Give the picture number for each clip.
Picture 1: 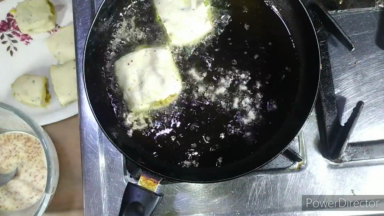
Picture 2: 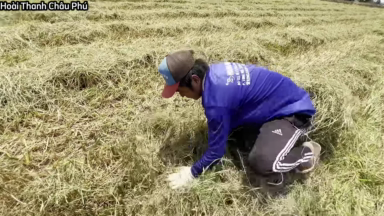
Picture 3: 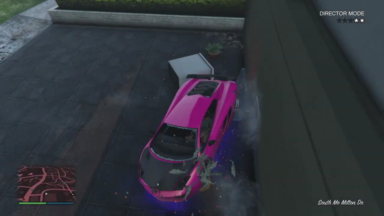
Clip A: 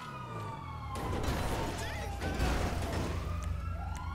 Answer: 3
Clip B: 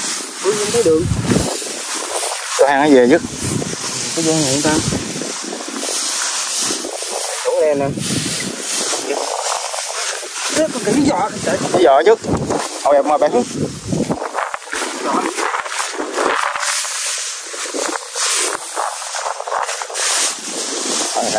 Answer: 2